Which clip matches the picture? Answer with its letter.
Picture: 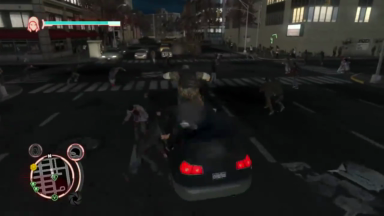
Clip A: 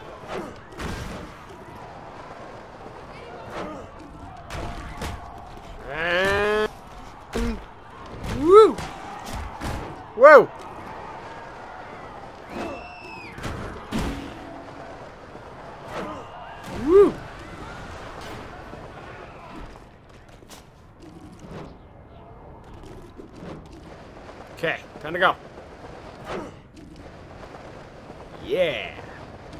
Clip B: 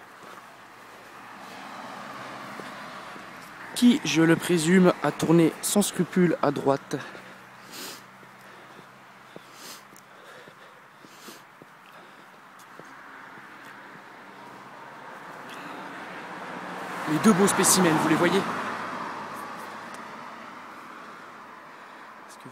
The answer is A